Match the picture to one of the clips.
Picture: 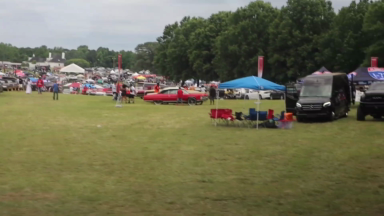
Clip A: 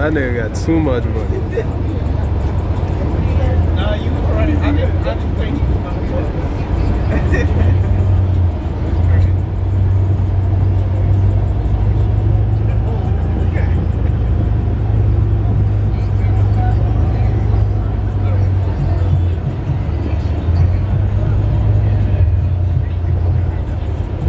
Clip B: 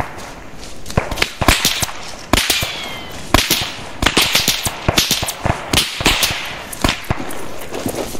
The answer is A